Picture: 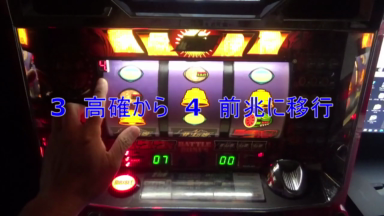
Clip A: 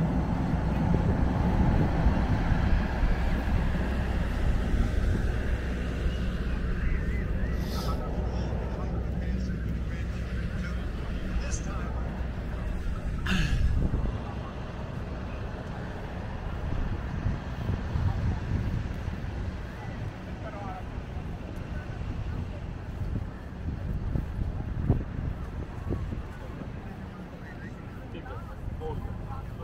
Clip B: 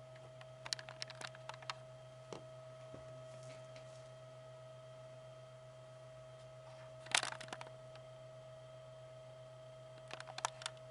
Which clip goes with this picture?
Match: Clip B